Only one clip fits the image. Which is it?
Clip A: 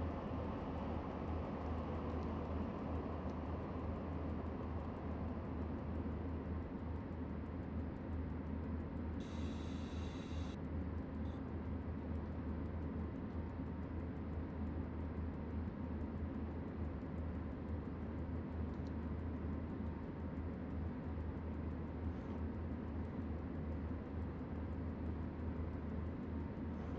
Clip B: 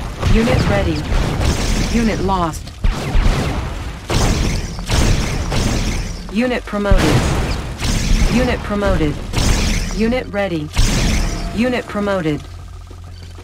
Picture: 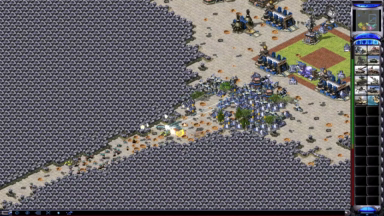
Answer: B